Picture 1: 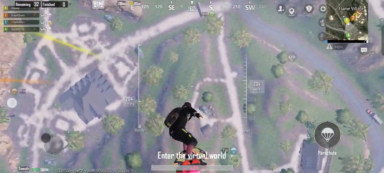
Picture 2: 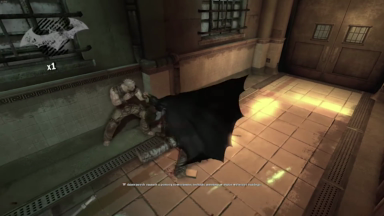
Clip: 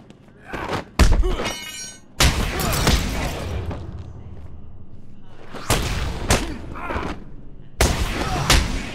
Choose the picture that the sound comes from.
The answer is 2